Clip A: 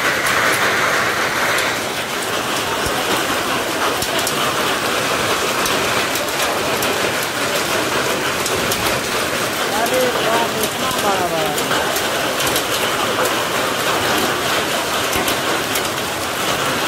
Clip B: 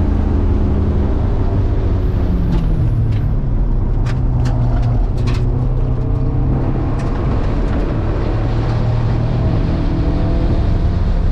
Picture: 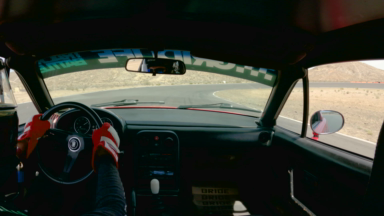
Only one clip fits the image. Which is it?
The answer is B